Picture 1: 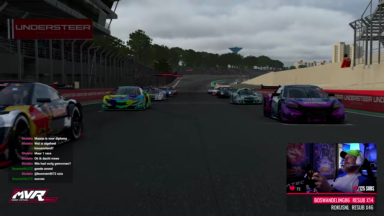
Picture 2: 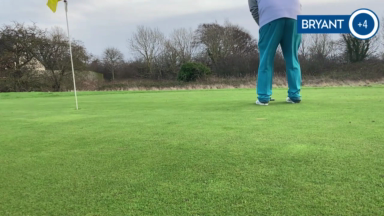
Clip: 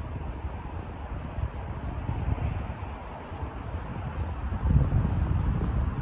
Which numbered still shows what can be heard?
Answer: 2